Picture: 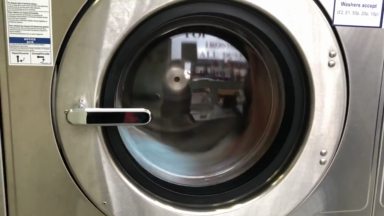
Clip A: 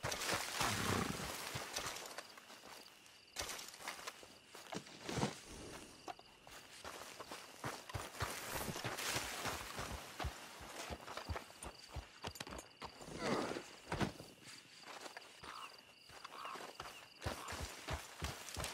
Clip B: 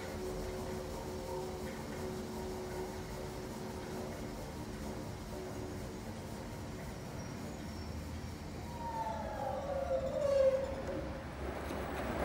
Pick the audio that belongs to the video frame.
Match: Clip B